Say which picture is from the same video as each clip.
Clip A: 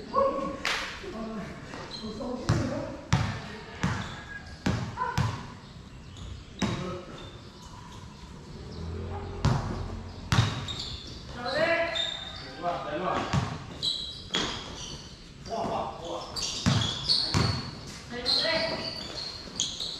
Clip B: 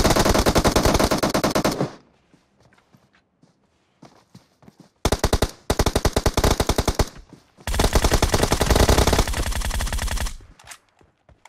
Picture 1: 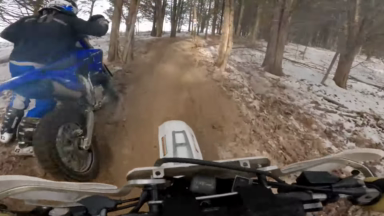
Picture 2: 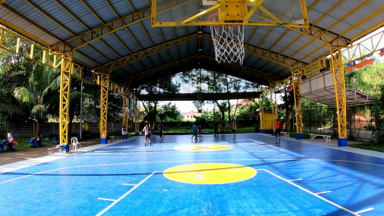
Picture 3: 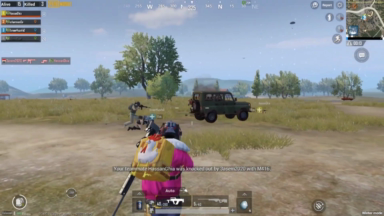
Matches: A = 2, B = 3